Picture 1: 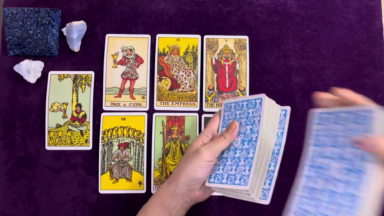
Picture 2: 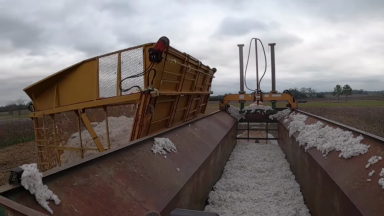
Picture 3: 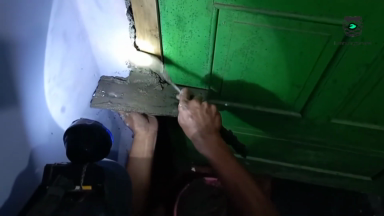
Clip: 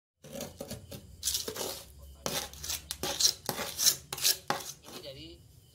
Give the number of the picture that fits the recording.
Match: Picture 3